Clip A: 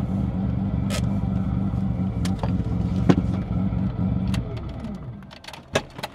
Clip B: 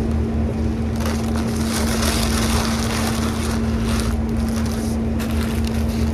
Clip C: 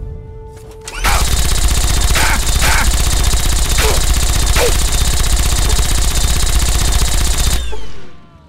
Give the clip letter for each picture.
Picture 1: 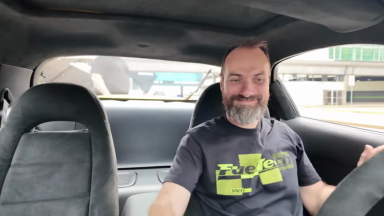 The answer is A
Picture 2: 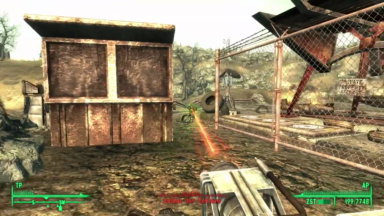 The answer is C